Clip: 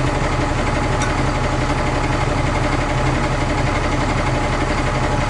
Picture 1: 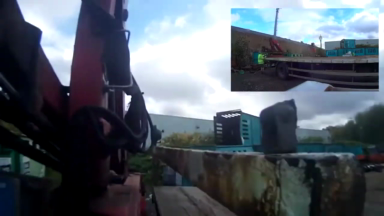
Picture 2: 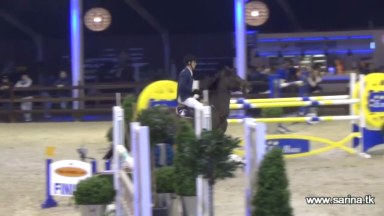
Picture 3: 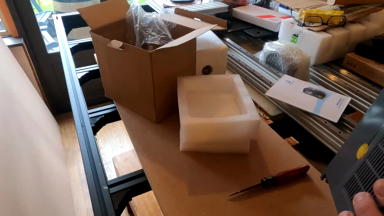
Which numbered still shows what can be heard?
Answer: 1